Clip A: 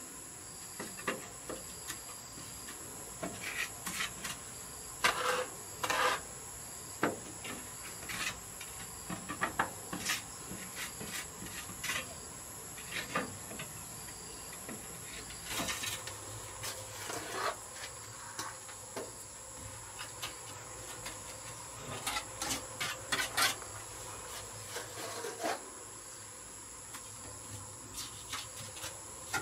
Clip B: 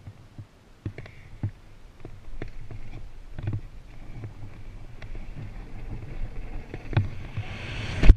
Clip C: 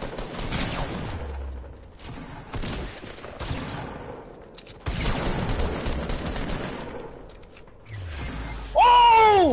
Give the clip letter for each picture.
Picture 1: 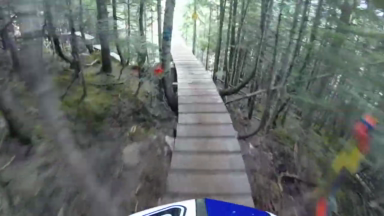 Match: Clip B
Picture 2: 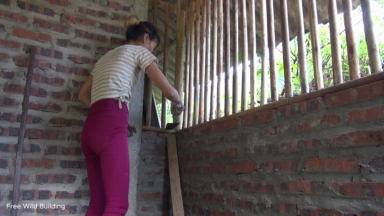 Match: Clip A